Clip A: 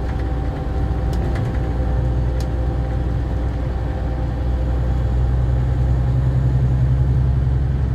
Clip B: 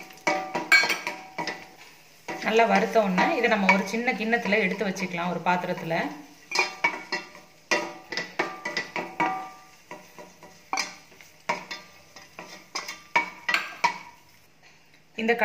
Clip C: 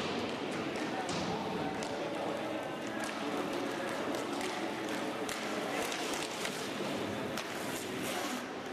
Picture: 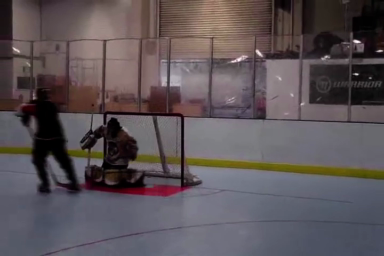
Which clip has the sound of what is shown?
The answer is C